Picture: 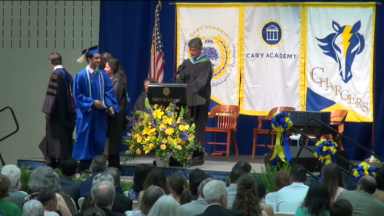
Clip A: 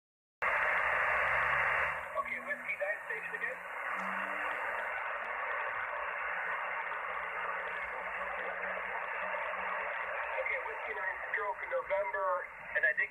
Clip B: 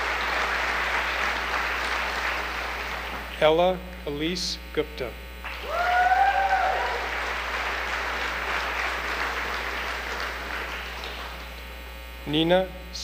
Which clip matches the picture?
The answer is B